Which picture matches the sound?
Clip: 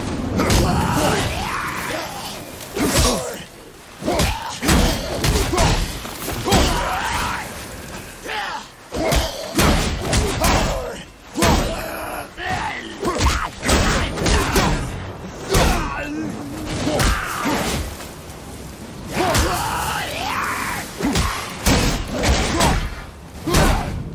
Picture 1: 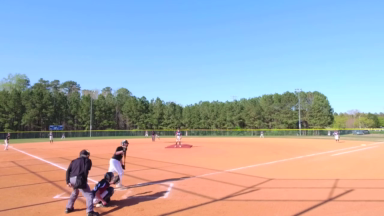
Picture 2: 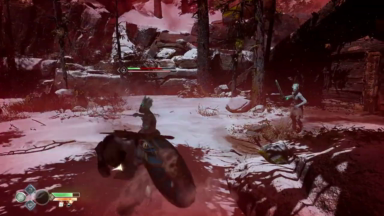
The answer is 2